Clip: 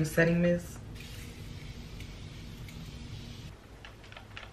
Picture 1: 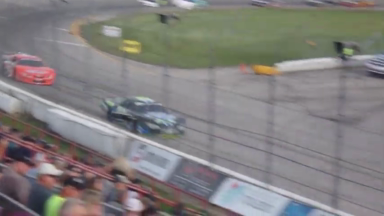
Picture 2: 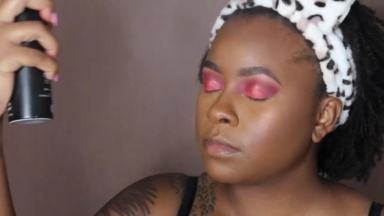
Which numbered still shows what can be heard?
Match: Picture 2